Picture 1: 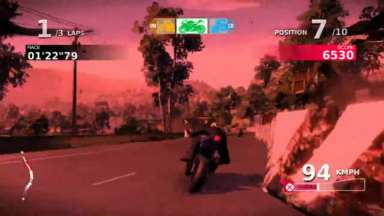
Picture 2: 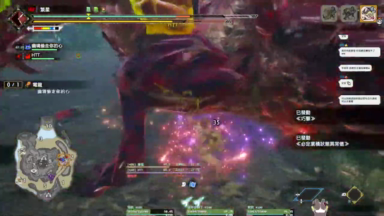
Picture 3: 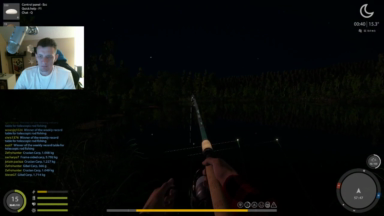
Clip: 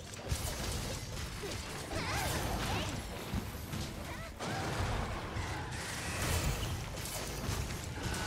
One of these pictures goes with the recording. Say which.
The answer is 2